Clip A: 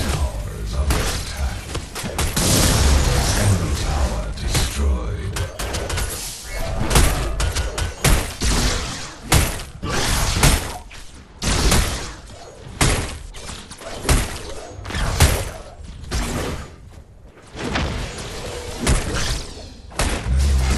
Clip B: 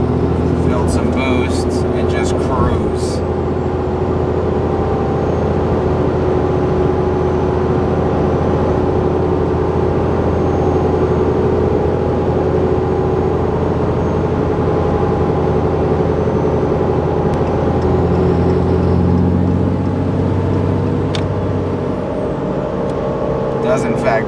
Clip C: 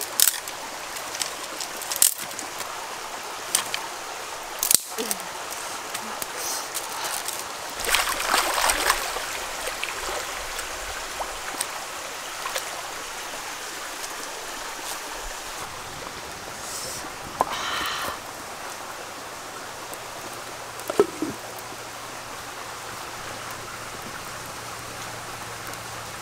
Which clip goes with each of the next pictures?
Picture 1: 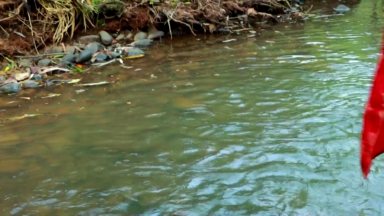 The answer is C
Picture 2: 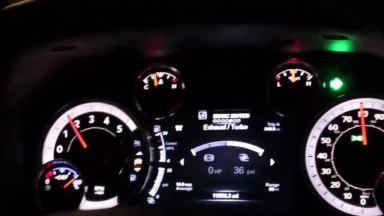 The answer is B